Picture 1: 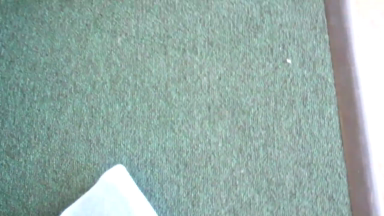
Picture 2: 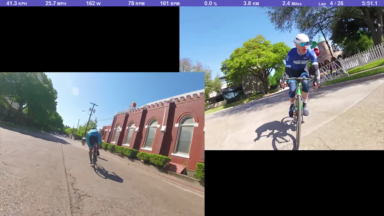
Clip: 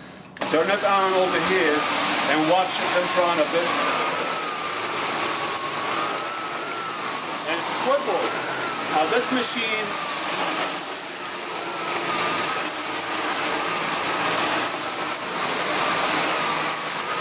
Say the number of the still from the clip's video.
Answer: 1